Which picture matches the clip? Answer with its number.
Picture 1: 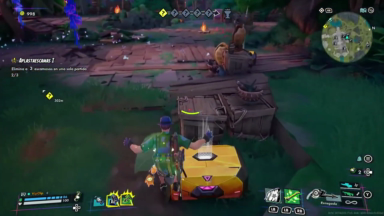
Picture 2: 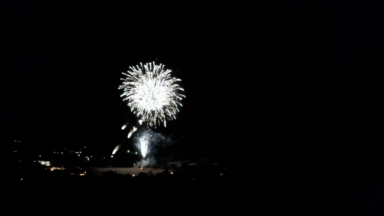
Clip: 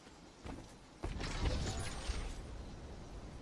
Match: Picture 1